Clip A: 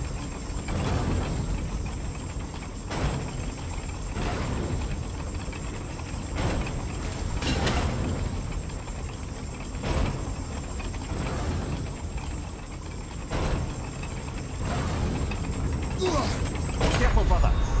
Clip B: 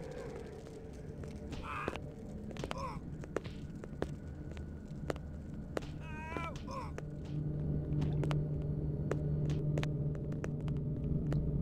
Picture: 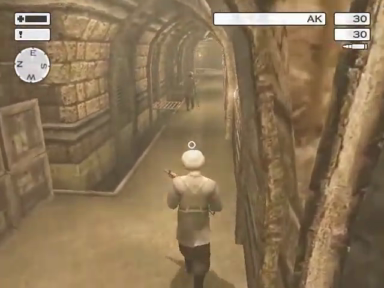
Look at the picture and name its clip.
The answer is B